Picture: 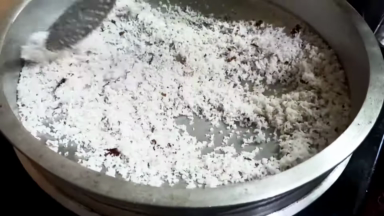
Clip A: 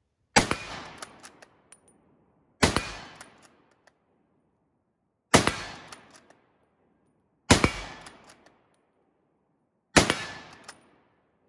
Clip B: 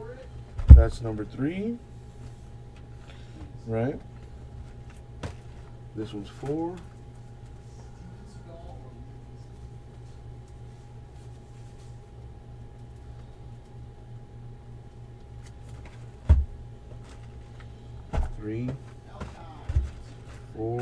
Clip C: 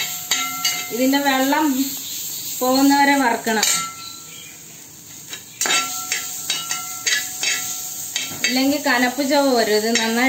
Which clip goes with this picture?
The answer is C